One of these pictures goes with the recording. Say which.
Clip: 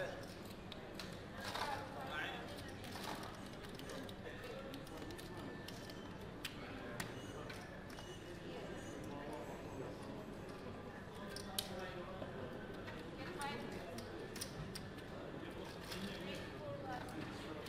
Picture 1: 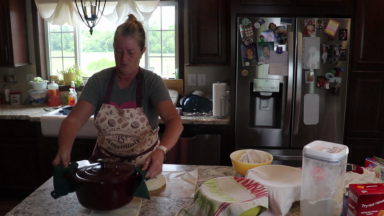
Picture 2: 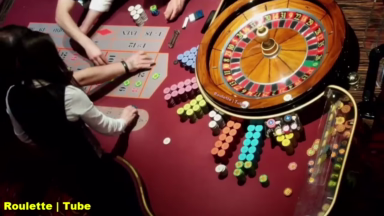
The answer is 2